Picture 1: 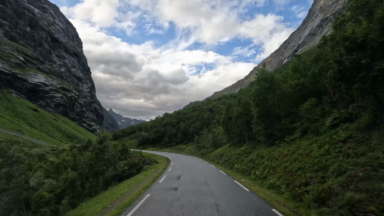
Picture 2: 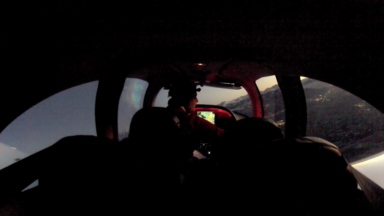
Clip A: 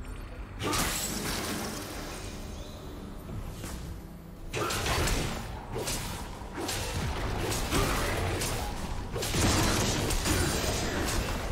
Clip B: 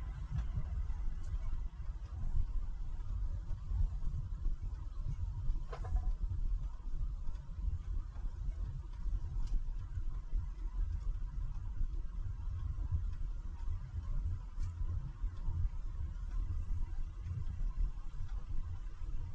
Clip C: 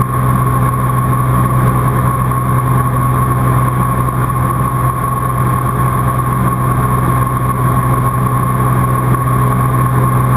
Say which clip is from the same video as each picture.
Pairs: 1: B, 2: C